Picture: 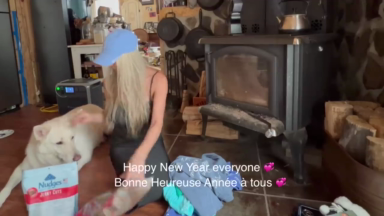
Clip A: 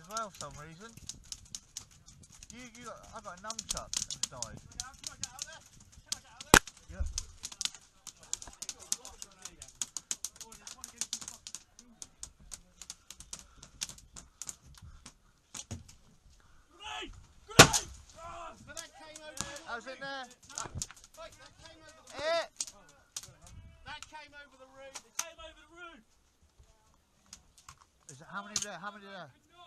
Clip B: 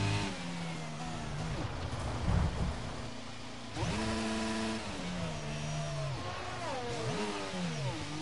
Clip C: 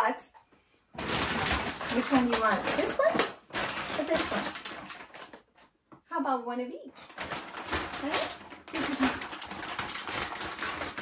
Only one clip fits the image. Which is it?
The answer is C